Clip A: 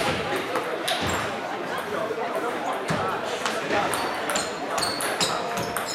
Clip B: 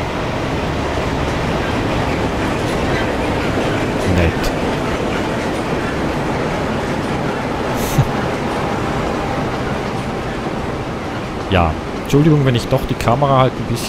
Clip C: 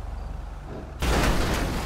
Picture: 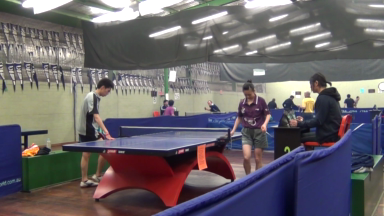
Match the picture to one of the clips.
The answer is A